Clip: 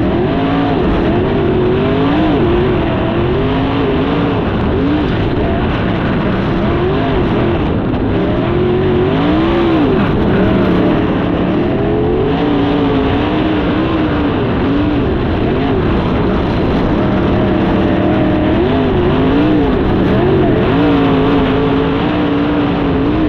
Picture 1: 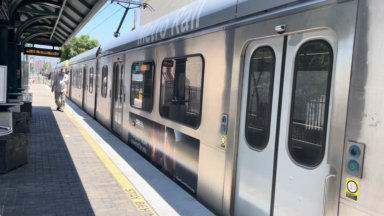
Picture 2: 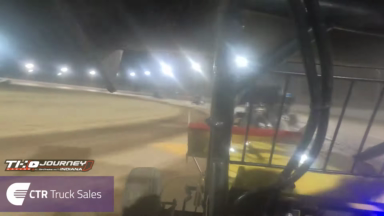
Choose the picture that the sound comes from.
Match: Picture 2